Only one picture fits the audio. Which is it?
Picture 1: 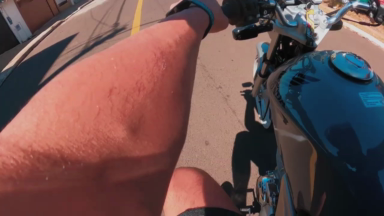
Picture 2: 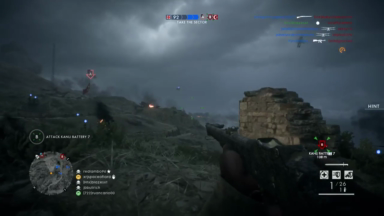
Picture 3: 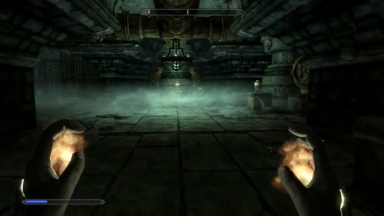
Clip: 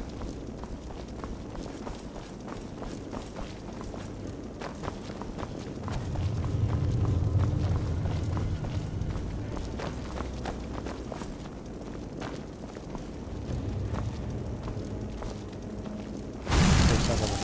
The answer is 3